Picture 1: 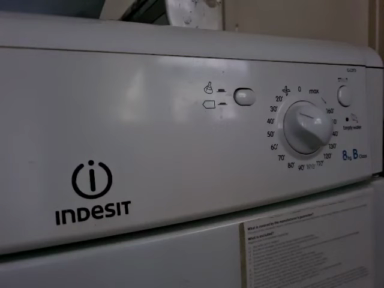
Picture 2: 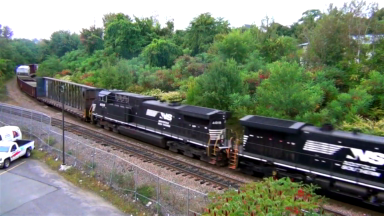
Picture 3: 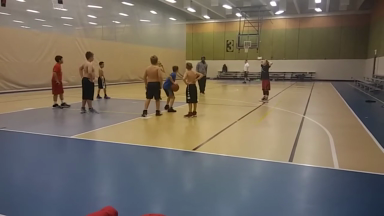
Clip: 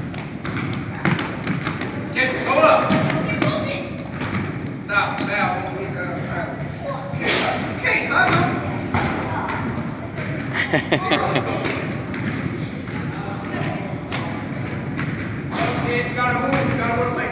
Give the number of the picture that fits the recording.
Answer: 3